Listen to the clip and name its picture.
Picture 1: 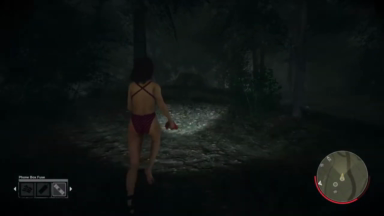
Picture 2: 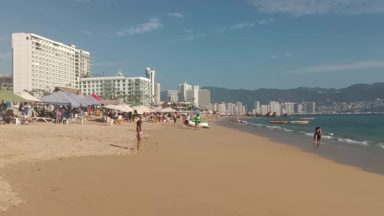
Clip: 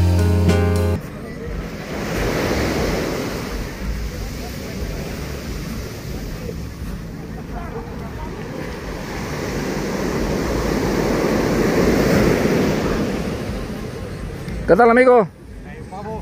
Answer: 2